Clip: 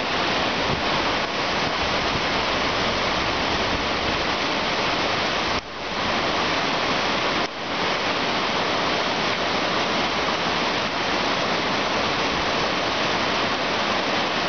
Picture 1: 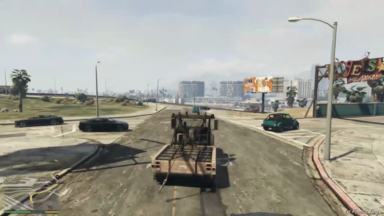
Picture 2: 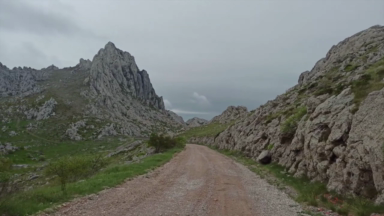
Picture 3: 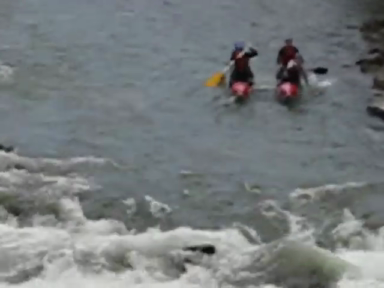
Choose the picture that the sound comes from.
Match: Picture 3